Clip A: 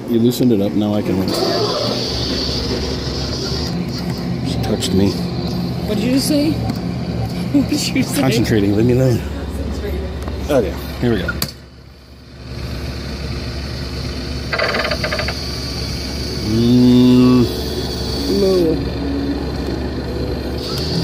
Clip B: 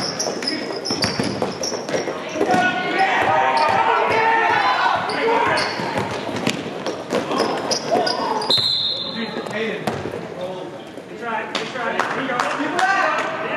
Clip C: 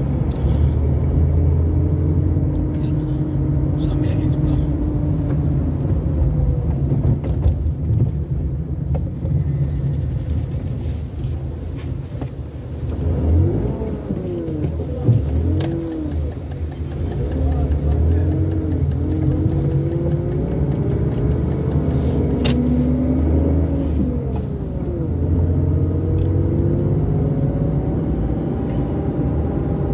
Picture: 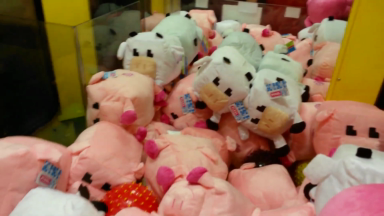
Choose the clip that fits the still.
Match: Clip A